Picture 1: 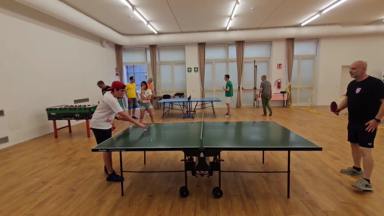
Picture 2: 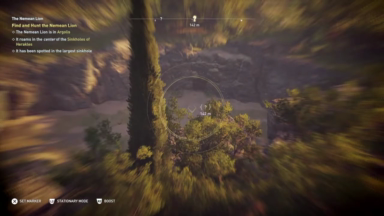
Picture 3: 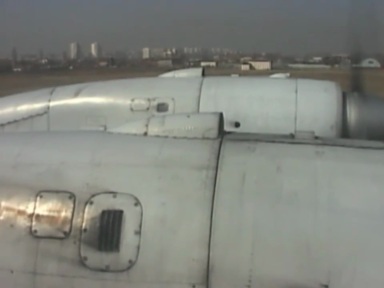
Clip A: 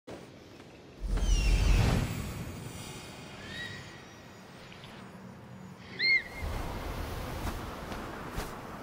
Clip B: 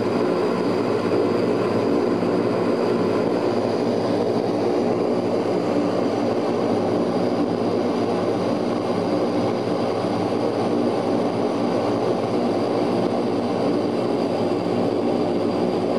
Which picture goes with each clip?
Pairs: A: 2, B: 3